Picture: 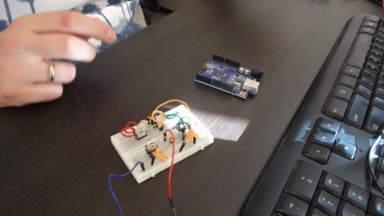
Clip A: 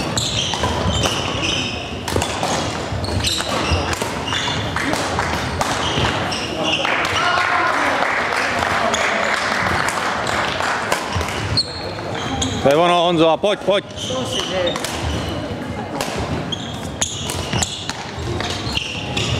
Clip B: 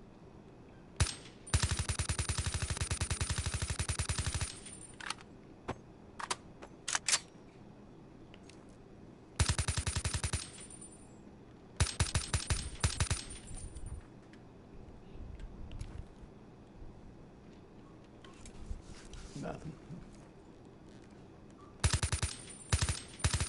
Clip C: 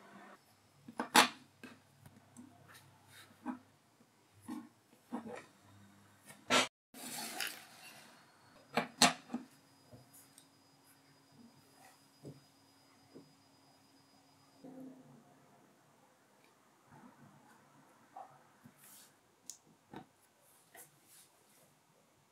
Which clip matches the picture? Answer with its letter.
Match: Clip C